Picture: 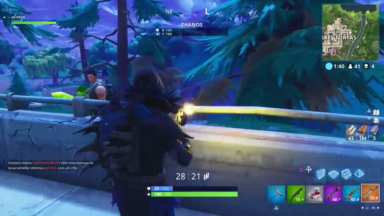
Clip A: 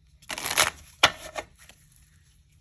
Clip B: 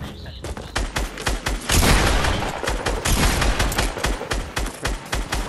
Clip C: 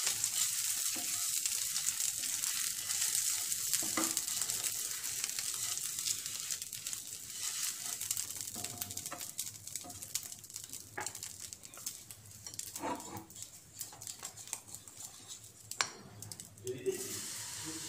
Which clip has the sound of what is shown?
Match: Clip B